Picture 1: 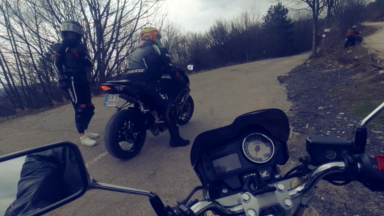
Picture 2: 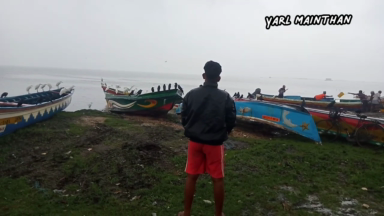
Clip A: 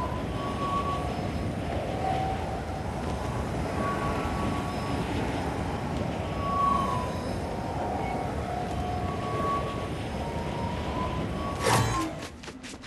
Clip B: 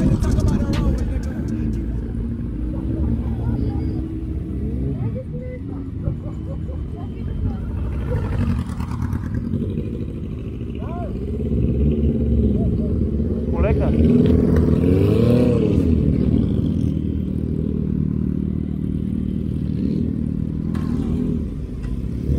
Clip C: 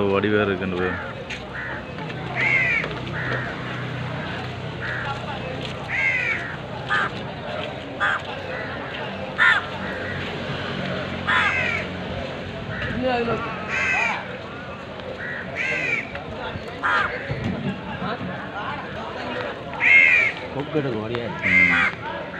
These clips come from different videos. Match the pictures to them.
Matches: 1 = B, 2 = C